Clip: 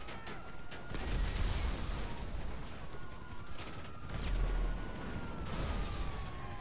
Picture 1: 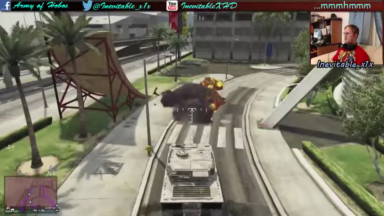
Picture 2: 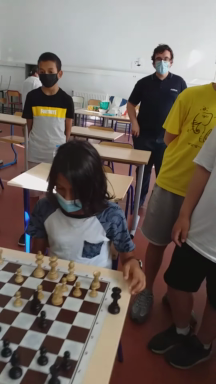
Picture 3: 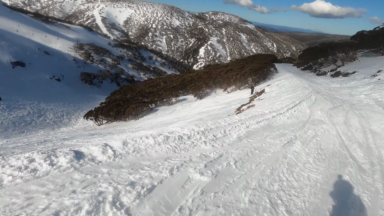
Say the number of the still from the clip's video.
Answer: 1